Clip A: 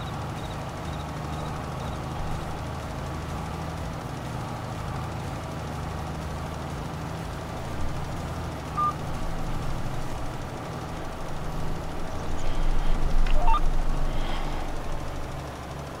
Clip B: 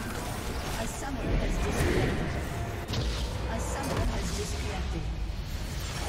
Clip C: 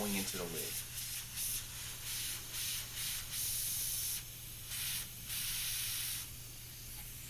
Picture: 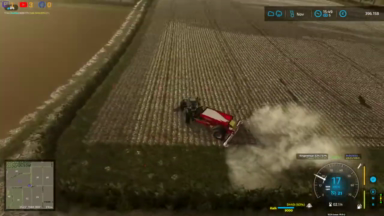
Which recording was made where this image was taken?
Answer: A